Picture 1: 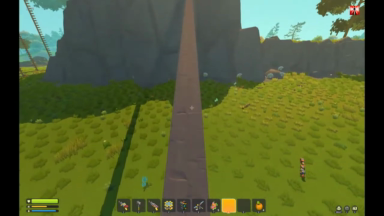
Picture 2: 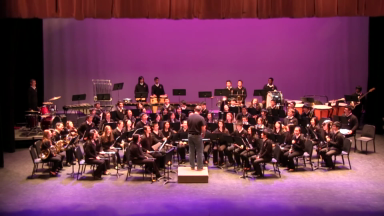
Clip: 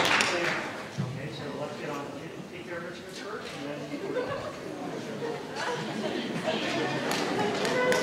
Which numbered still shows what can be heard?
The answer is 2